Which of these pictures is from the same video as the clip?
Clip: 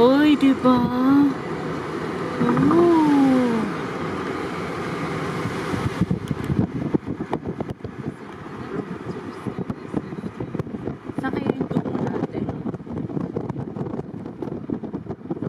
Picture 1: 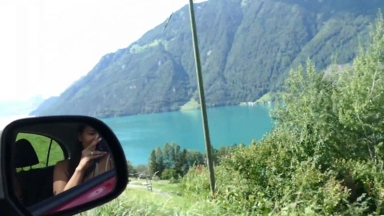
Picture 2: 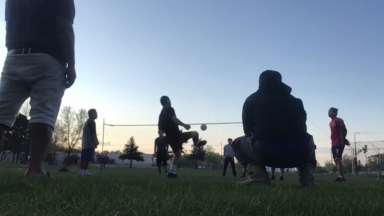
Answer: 1